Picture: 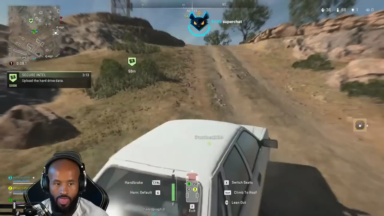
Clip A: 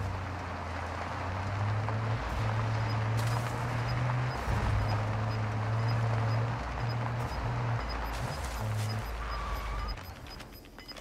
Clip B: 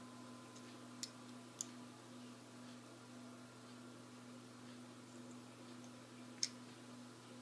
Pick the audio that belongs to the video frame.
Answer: A